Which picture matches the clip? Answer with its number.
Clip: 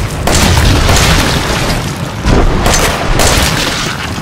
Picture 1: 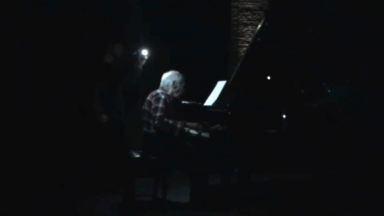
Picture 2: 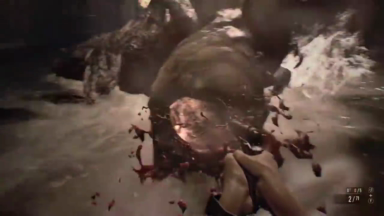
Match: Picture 2